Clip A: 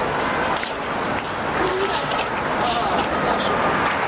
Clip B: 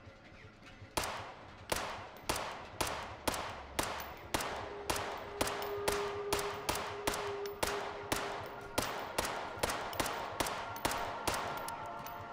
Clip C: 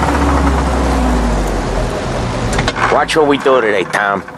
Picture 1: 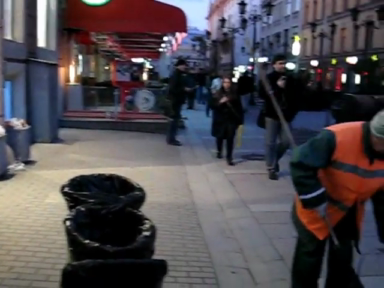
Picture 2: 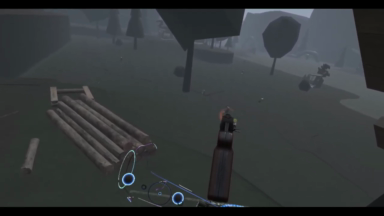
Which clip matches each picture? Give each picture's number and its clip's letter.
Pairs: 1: A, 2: B